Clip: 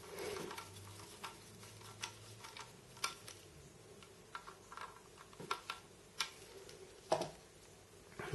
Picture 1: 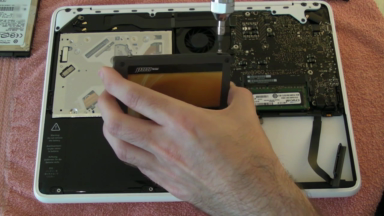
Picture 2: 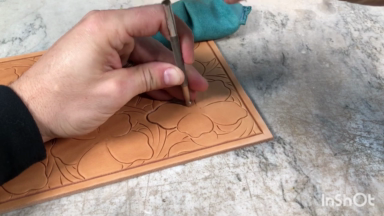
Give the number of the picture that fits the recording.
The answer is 1